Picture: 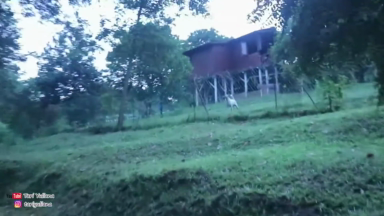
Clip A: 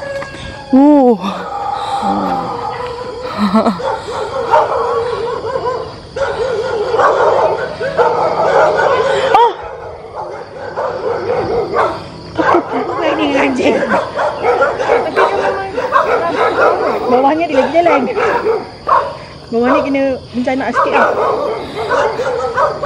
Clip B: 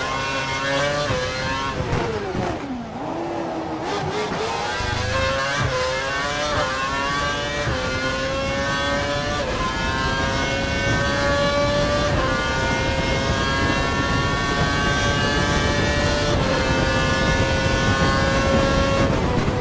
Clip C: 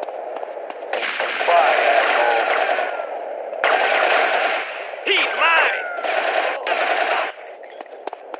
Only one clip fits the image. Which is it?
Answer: A